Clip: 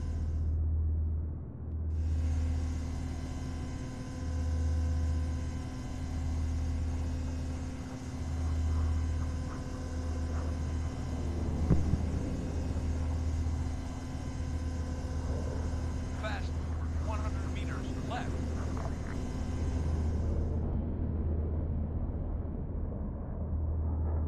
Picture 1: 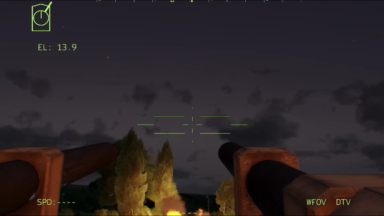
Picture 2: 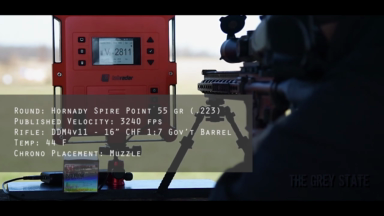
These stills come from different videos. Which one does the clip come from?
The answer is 1